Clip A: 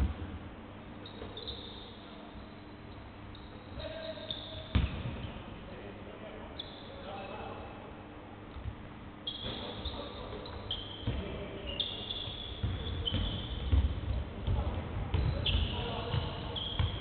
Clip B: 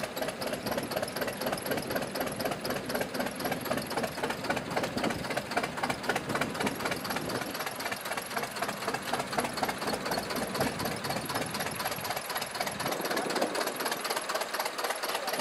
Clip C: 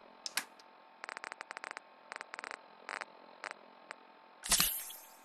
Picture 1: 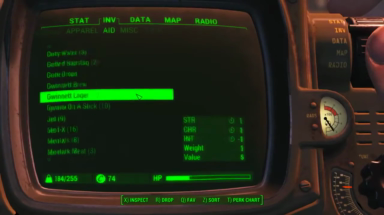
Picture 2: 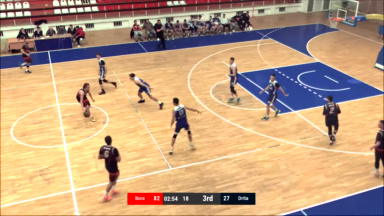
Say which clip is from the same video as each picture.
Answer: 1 C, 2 A